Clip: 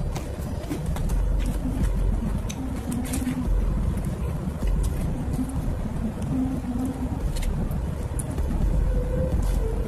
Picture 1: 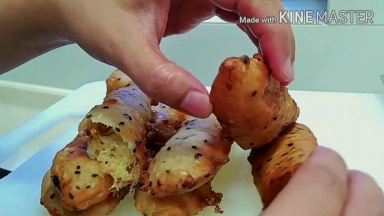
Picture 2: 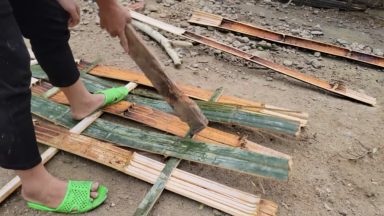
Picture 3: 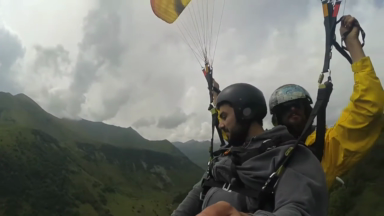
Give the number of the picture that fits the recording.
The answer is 1